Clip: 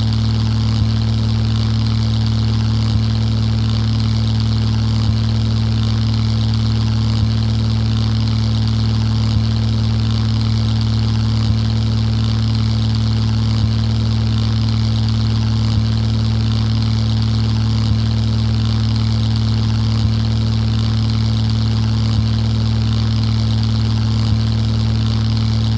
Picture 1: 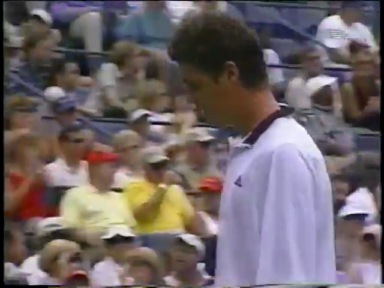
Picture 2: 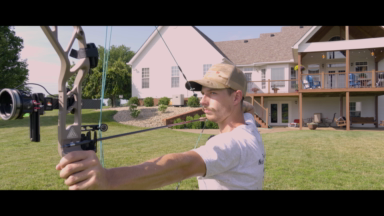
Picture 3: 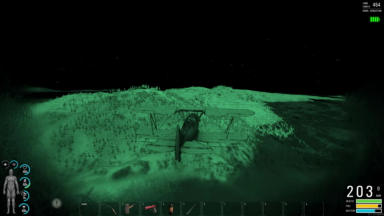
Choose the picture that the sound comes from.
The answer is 3